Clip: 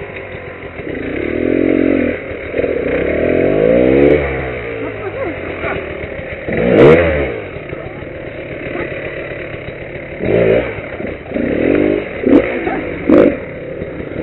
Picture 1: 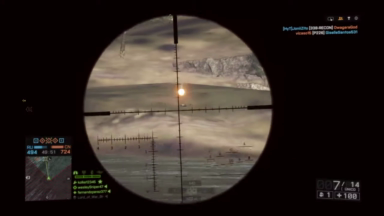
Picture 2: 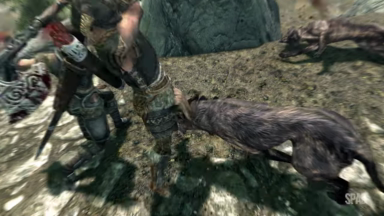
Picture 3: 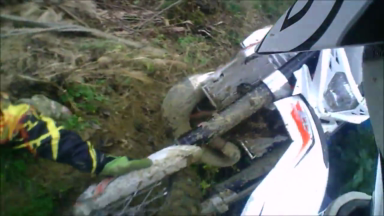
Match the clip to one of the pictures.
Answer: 3